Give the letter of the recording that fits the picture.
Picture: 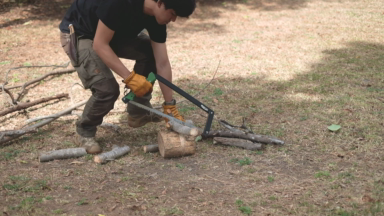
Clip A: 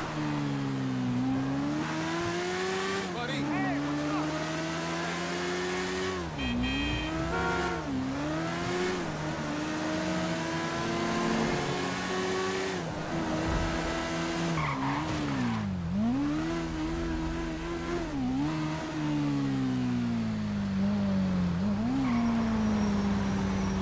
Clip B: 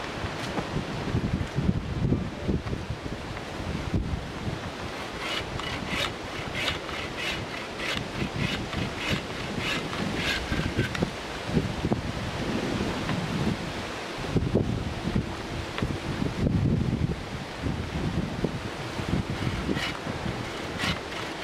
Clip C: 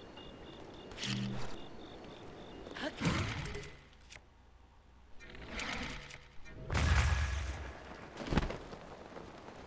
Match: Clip B